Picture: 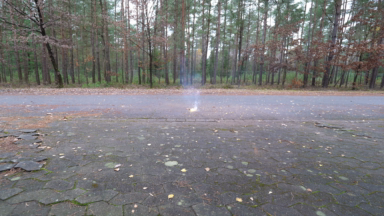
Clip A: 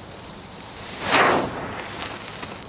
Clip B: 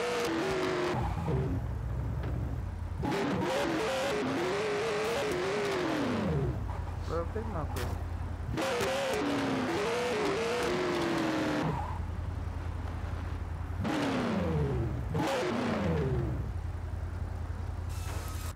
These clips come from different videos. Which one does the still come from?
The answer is A